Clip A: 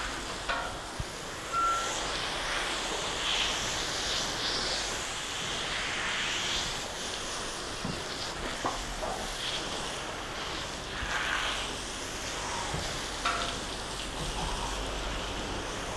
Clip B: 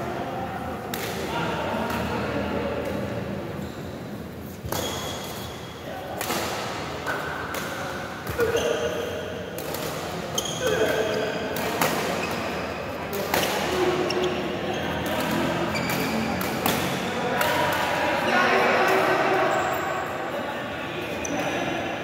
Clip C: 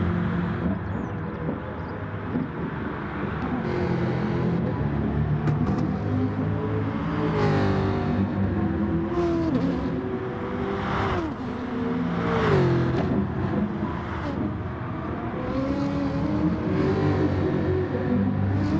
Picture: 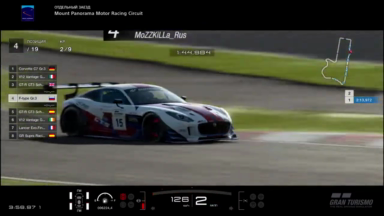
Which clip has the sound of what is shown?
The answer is C